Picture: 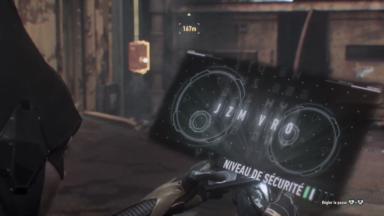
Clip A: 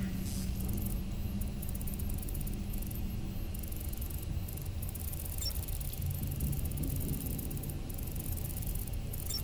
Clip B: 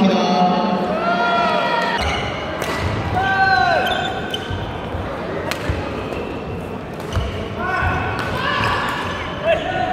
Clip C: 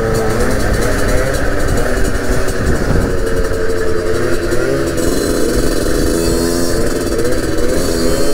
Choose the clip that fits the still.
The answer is A